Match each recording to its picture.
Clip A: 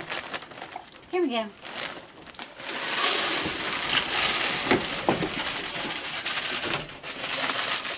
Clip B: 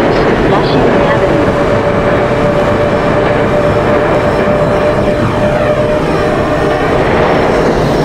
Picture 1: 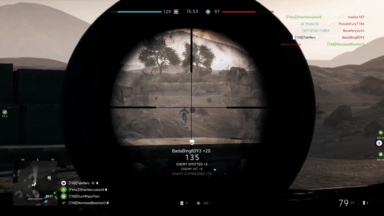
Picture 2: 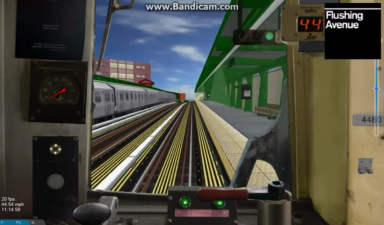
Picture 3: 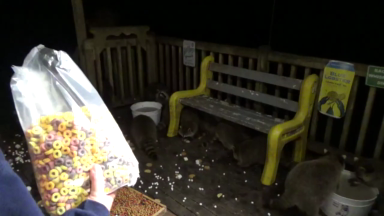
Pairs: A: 3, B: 2